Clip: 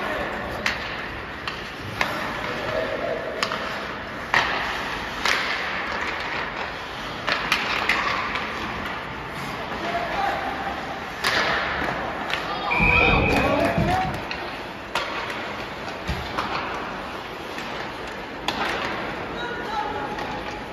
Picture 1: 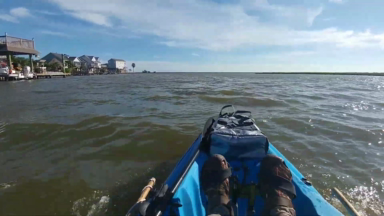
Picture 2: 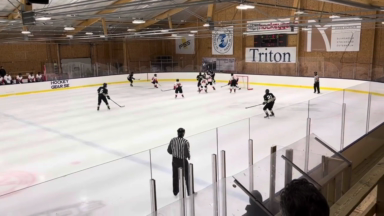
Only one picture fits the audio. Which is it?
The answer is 2